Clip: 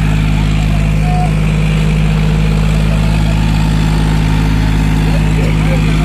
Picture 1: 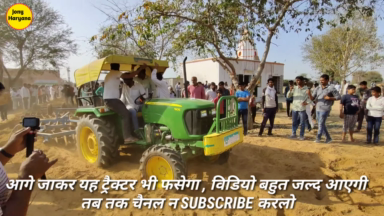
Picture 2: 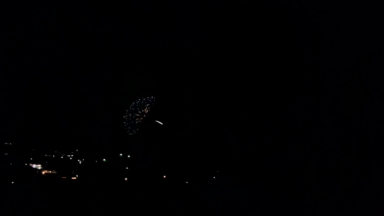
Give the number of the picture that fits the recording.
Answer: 1